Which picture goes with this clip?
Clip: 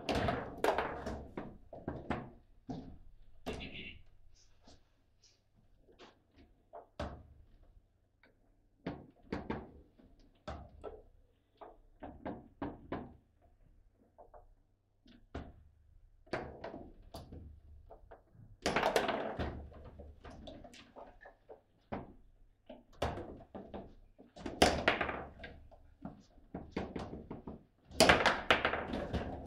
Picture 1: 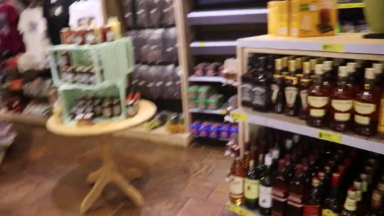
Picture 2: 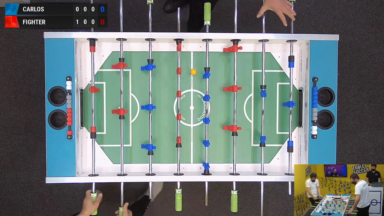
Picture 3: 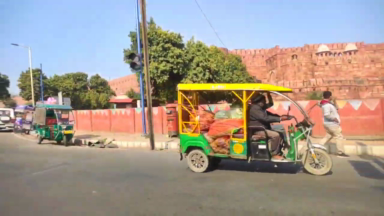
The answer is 2